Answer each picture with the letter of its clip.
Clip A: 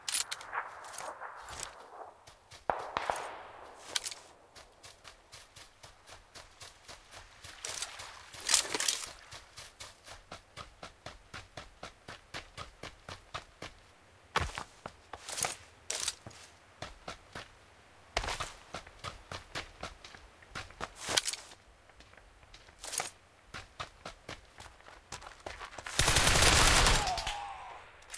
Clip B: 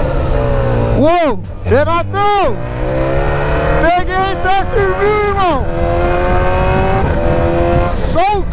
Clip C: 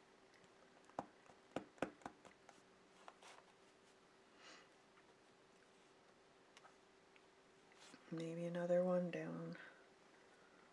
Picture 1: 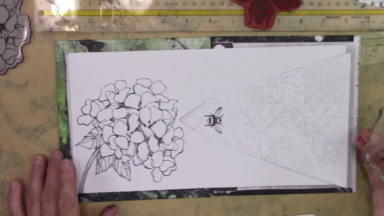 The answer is C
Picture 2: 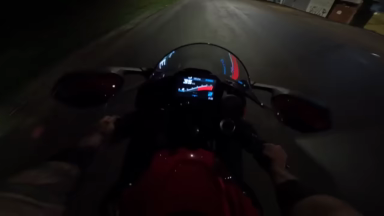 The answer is B